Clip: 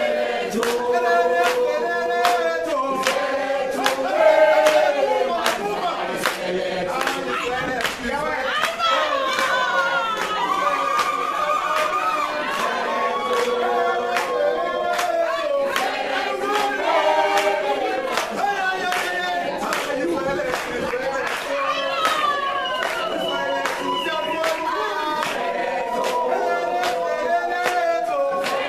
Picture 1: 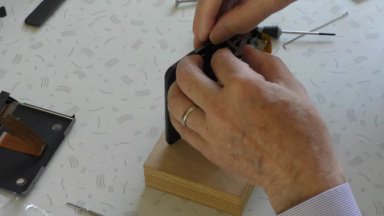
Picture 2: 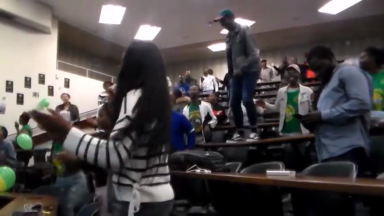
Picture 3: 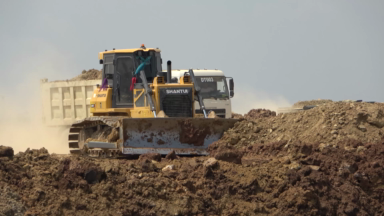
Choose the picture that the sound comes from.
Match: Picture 2